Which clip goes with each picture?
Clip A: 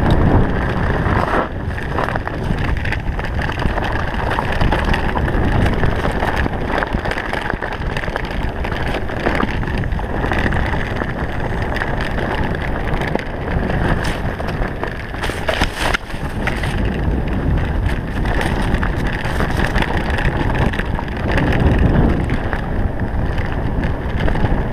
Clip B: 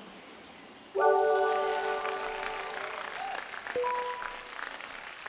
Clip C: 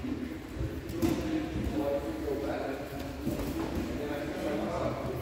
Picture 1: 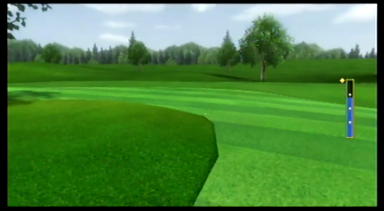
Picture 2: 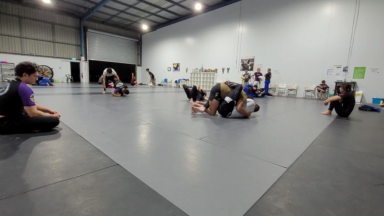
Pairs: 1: B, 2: C